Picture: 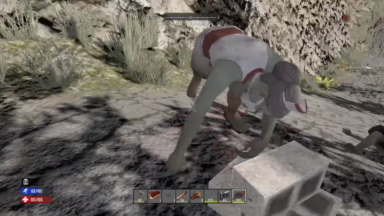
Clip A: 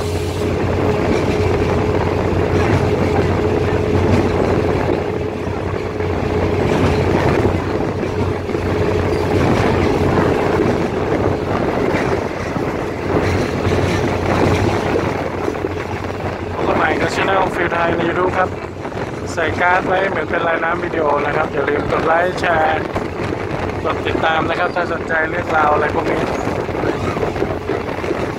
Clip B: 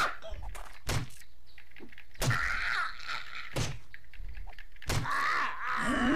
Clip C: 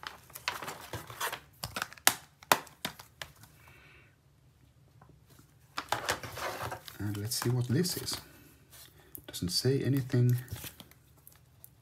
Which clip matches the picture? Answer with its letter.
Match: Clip B